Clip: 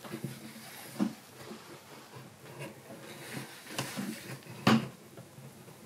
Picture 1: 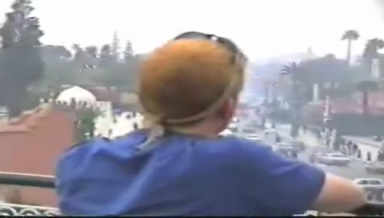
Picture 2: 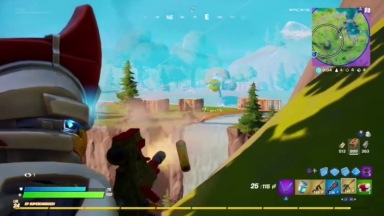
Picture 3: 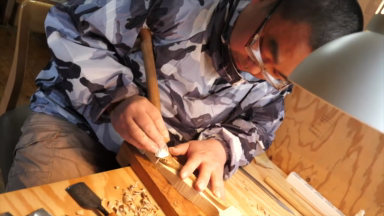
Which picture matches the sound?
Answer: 3